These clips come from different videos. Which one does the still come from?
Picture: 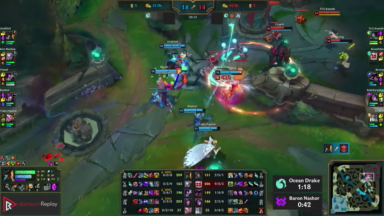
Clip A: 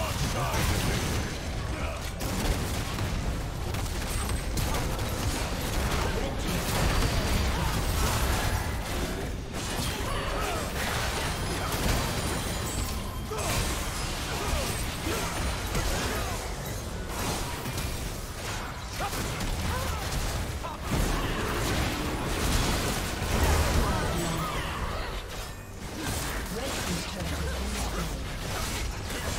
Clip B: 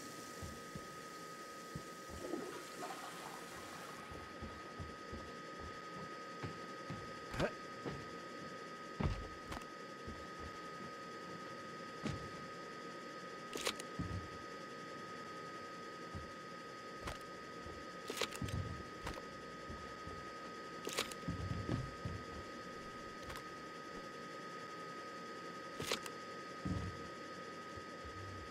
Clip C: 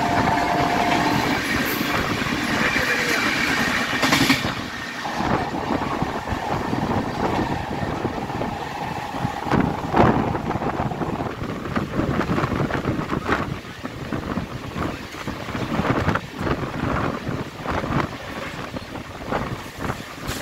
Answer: A